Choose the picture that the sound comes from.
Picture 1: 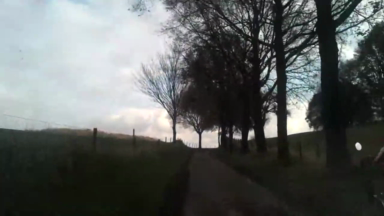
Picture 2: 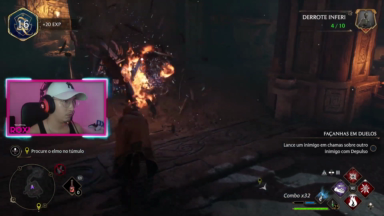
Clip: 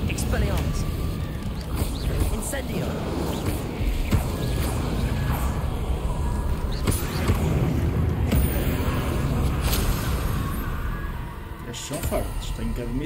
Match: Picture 2